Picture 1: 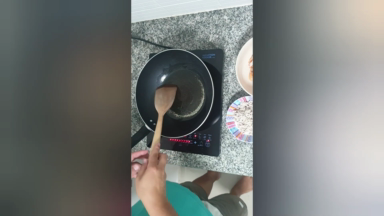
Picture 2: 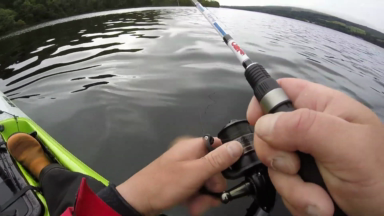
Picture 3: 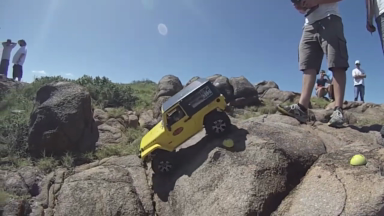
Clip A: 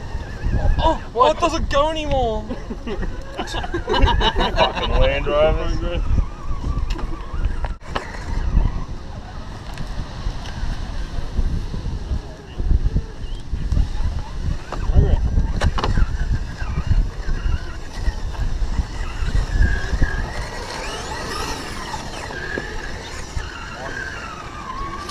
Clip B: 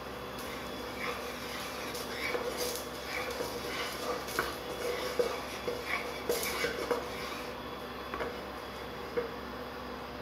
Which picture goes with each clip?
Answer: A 3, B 1